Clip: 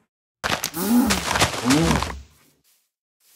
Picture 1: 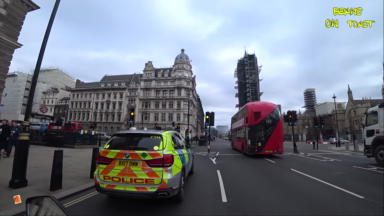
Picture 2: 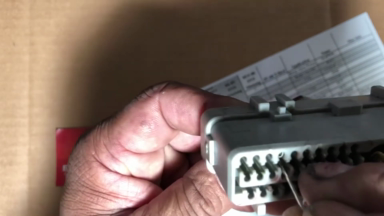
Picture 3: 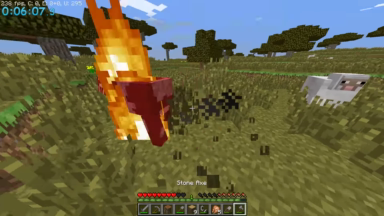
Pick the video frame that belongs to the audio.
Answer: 3